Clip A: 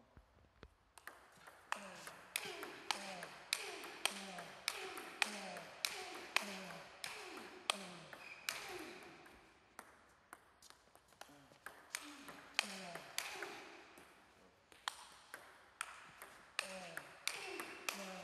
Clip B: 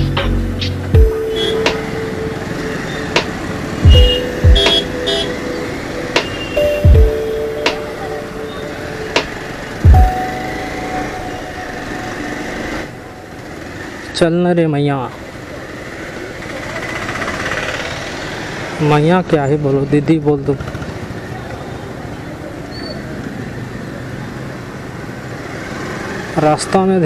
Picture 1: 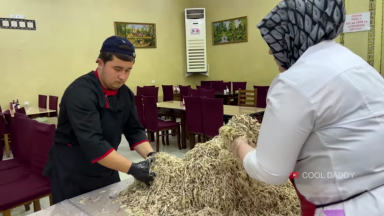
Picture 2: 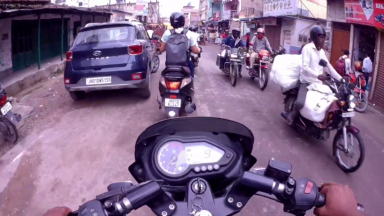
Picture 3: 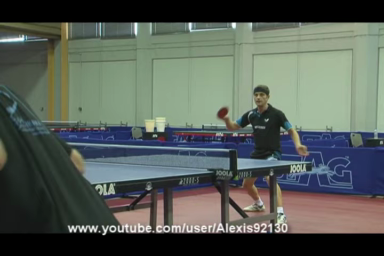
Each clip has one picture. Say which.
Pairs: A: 3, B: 2